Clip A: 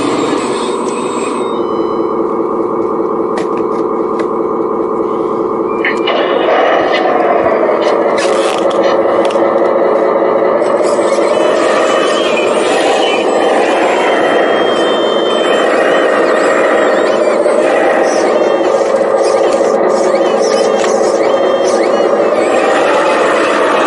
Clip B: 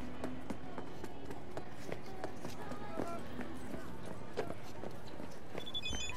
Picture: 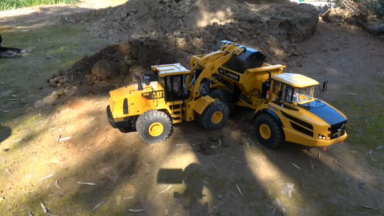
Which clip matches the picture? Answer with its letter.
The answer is A